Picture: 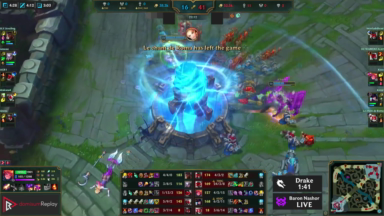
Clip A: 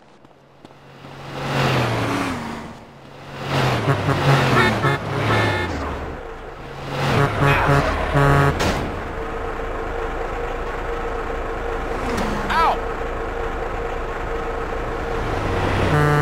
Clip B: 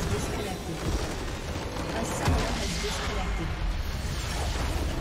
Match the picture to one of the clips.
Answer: B